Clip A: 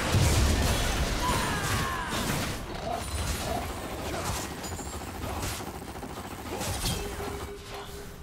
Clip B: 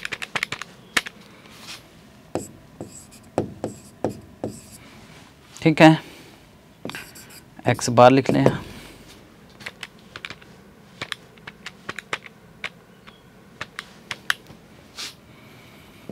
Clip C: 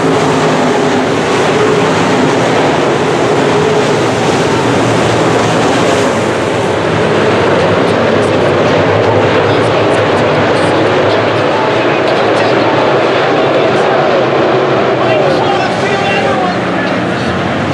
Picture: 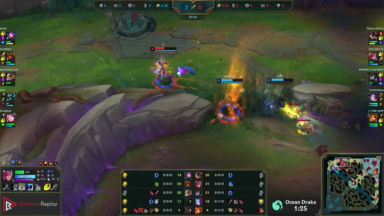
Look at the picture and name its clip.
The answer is A